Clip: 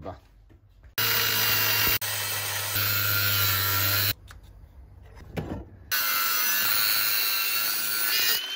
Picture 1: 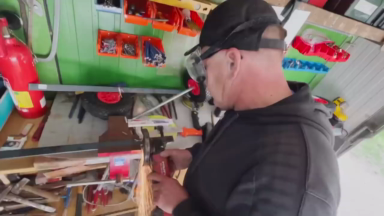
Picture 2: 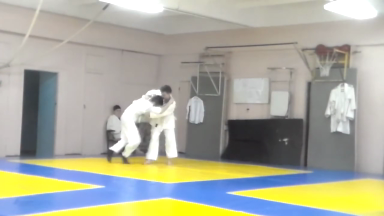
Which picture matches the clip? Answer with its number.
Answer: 1